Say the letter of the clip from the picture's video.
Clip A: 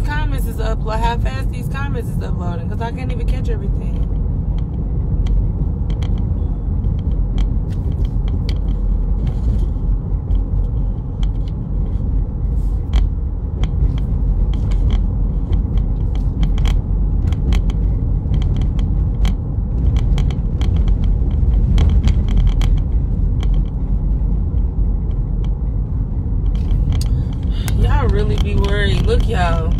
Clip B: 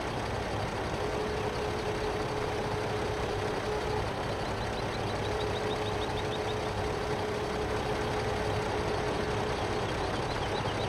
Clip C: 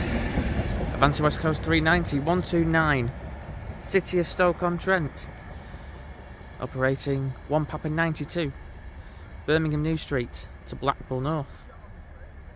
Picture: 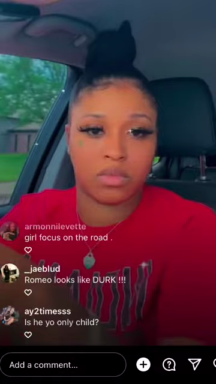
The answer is A